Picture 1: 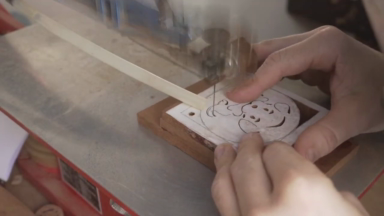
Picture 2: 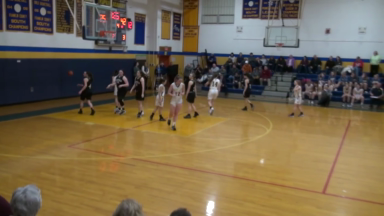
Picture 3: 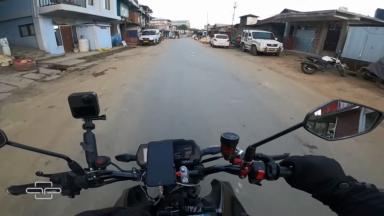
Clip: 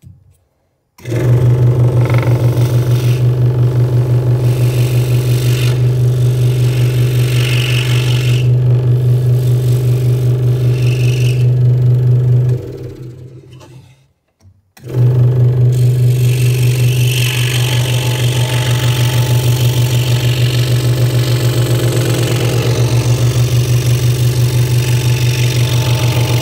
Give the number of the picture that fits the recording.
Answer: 1